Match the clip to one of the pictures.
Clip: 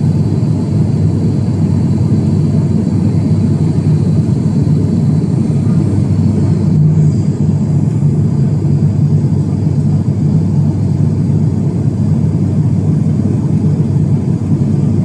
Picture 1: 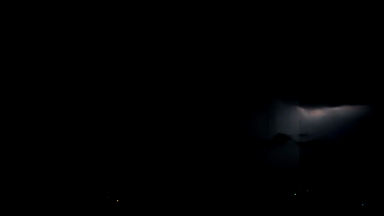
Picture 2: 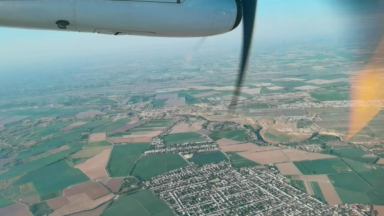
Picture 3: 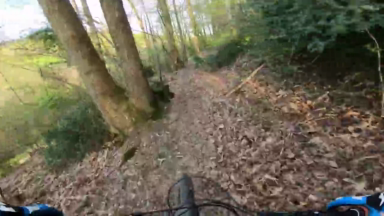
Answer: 2